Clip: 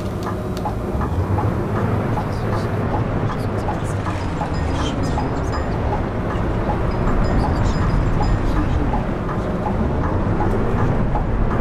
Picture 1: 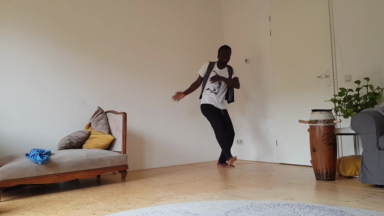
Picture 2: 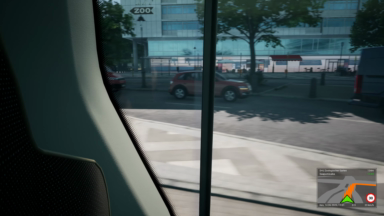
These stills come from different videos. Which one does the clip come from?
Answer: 2